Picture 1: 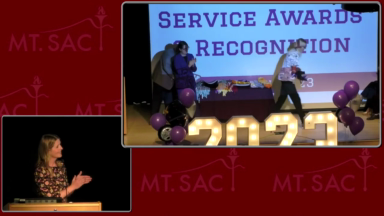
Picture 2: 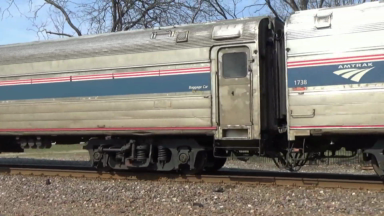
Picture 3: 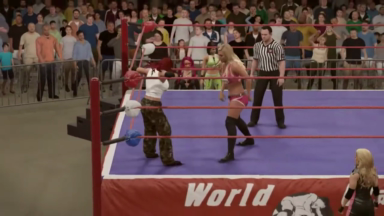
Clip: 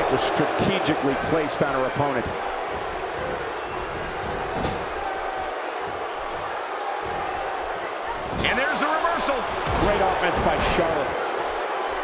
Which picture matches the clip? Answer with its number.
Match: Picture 3